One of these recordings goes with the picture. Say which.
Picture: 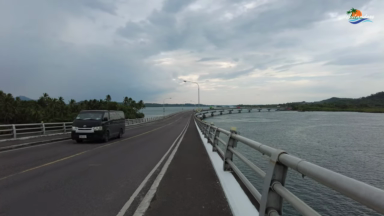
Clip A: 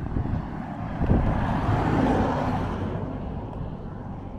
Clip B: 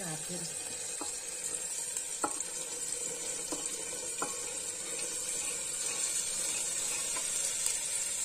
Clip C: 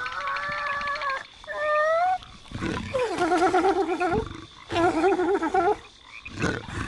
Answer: A